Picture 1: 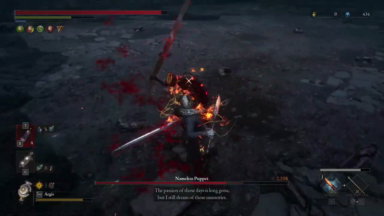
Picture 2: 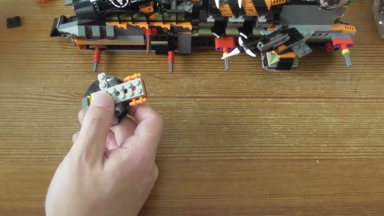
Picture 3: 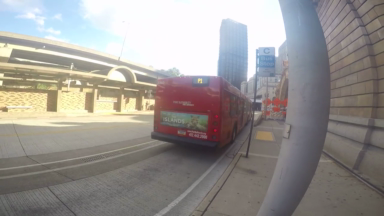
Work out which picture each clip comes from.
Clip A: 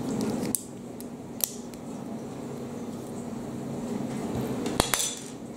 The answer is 2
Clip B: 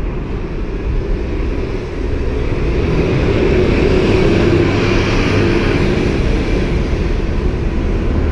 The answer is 3